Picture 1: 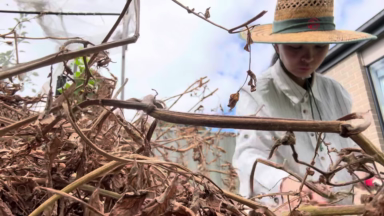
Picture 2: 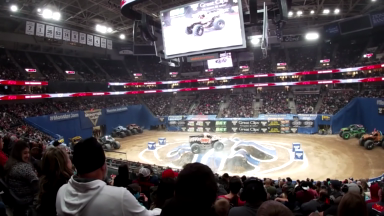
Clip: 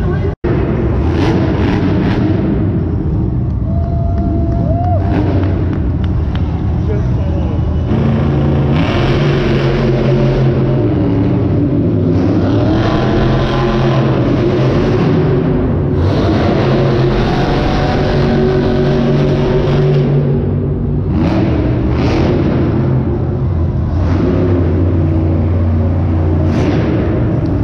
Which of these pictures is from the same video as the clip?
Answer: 2